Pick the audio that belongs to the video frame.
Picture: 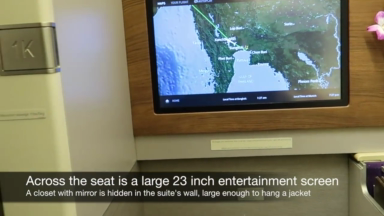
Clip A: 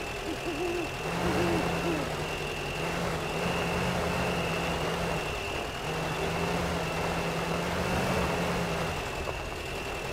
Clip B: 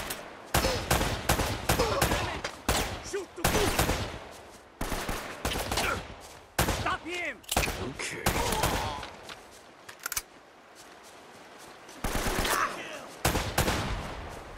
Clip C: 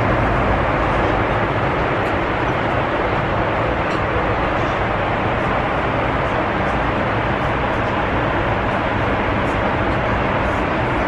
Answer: C